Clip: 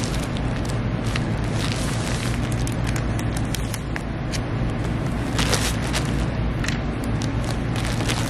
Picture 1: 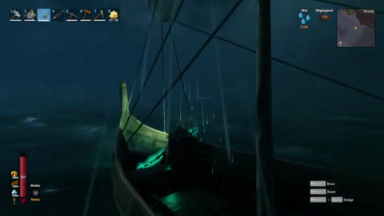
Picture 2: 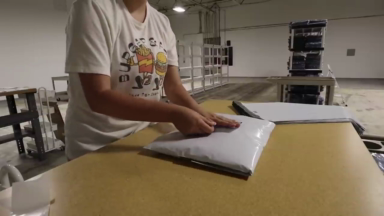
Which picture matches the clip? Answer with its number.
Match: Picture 2